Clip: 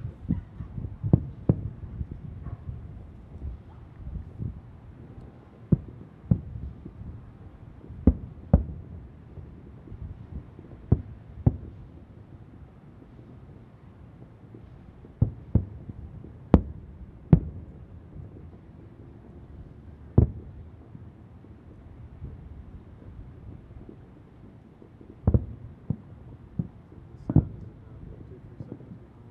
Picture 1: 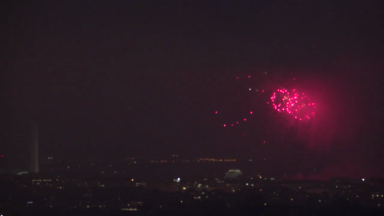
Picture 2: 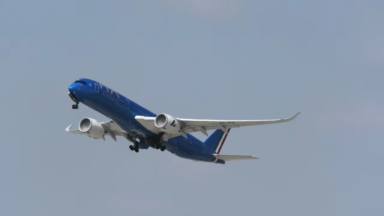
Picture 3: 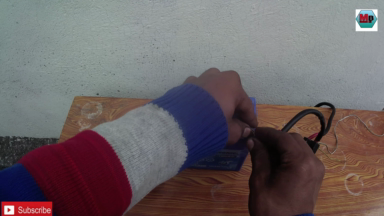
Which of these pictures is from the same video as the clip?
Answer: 1